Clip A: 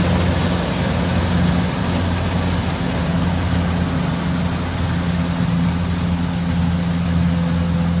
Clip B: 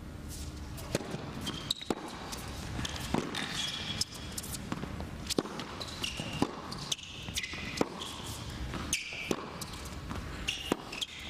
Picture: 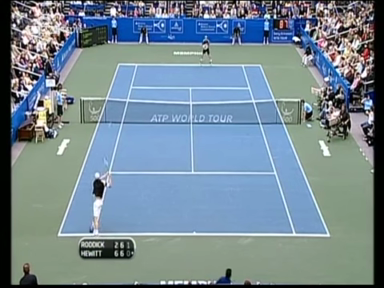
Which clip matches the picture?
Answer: B